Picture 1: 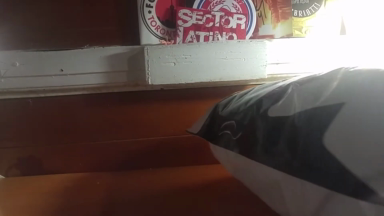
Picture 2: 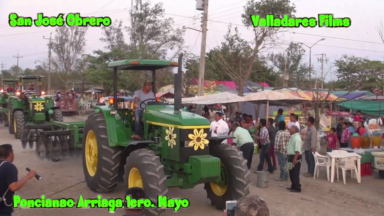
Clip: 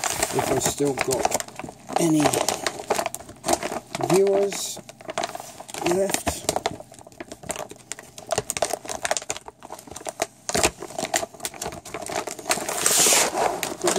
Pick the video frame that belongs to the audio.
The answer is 1